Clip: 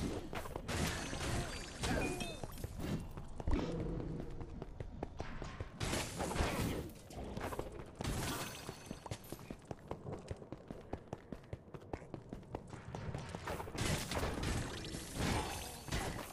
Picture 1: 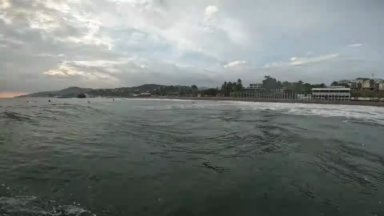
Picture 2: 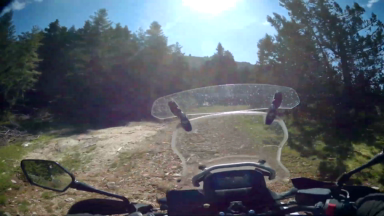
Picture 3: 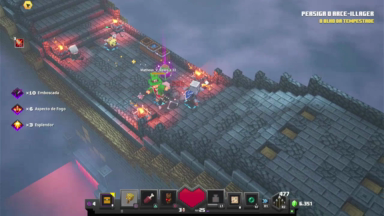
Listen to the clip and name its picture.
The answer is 3